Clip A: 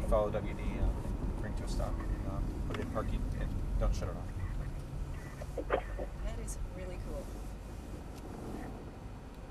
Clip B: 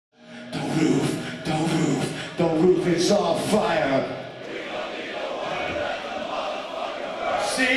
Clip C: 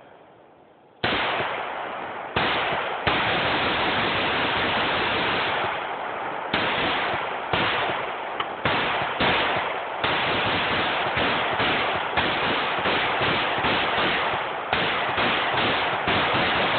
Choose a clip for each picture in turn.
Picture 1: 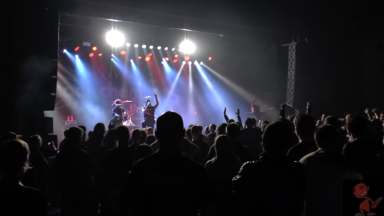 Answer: B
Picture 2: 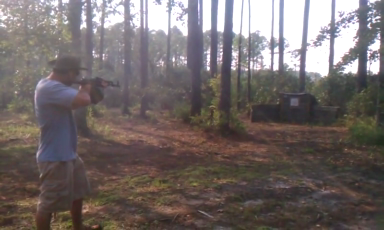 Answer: C